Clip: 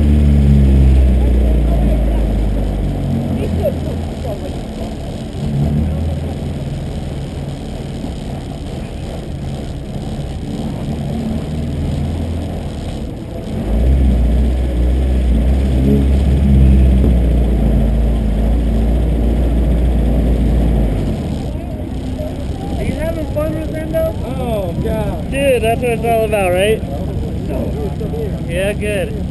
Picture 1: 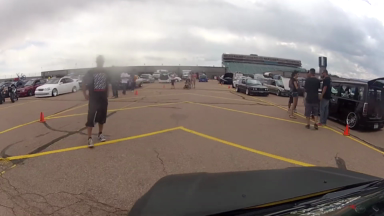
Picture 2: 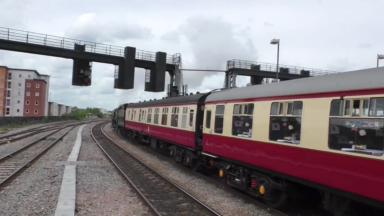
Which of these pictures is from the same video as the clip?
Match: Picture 1